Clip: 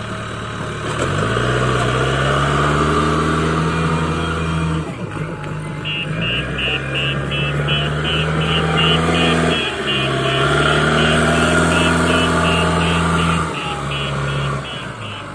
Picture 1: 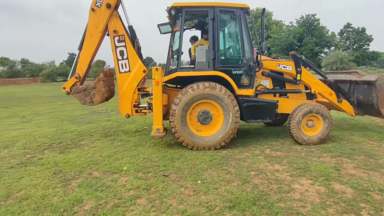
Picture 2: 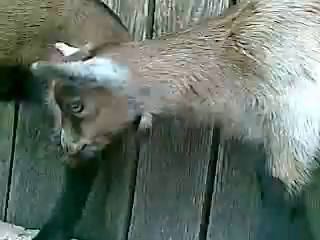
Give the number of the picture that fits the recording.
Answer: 1